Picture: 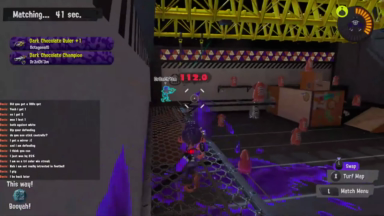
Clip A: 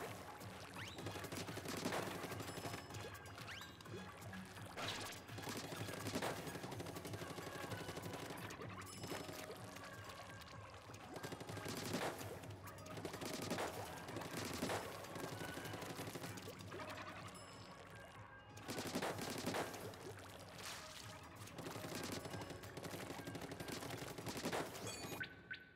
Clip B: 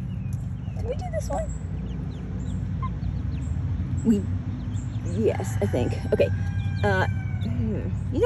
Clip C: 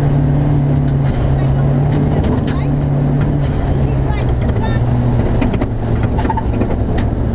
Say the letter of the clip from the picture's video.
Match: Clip A